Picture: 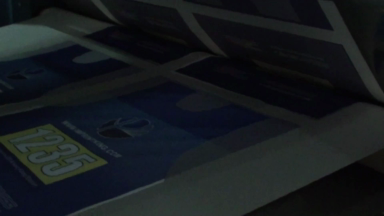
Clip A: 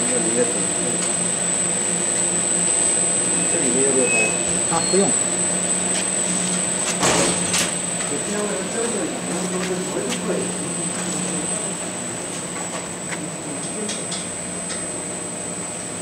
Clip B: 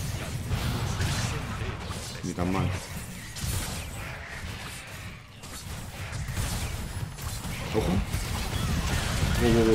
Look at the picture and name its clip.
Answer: A